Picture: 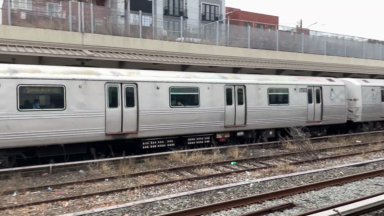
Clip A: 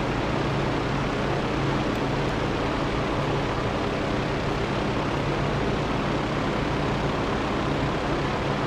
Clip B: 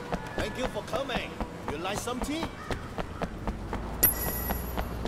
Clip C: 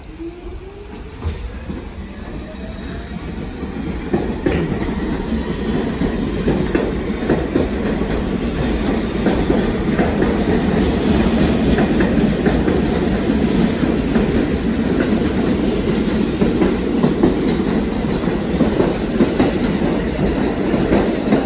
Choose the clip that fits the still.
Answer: C